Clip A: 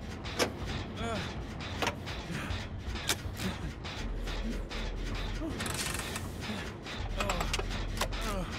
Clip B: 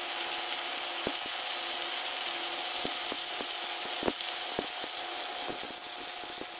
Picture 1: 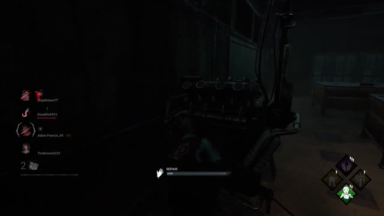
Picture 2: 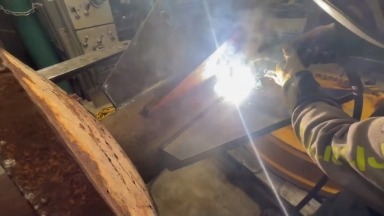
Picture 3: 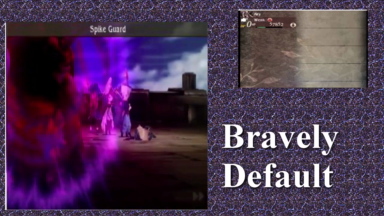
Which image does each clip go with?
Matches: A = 1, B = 2